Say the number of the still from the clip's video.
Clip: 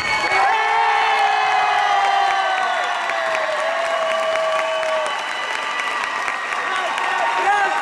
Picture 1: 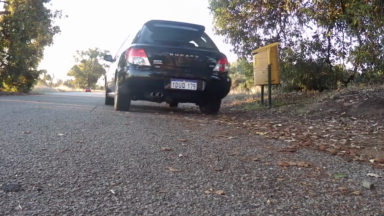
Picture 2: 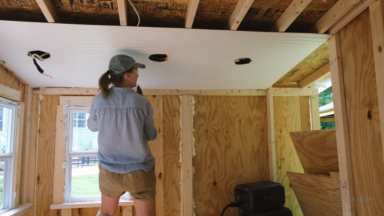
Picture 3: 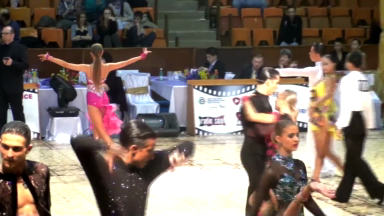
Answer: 3